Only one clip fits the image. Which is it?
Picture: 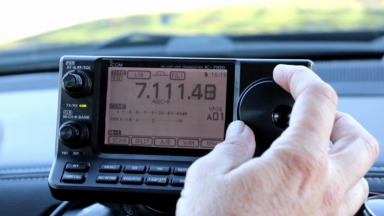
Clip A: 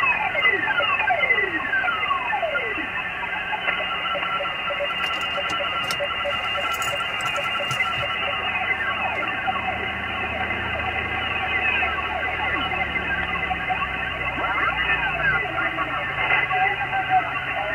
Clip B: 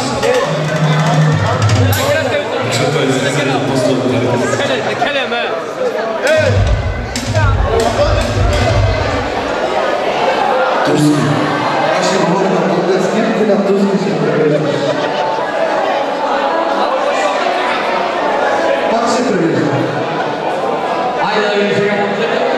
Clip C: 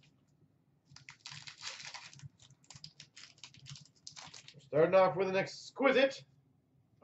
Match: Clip A